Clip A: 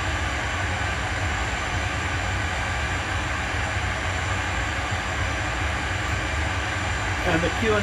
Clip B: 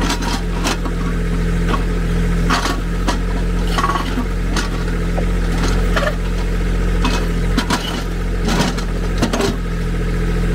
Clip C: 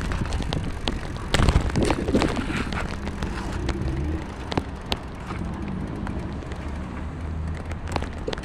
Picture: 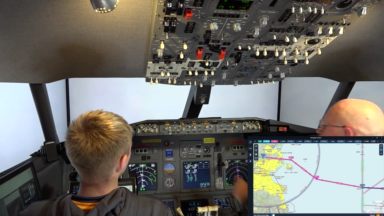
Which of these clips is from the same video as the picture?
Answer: A